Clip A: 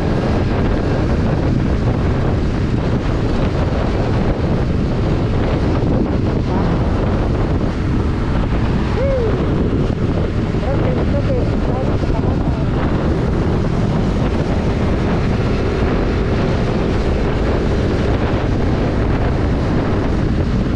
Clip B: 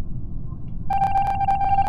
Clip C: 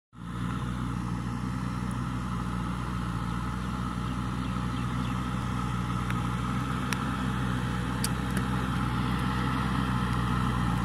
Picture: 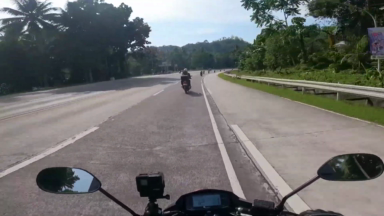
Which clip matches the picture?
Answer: A